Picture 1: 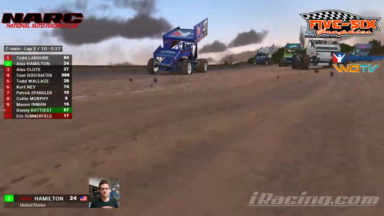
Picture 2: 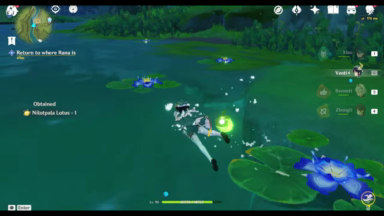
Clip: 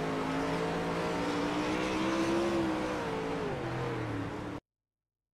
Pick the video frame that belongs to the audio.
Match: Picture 1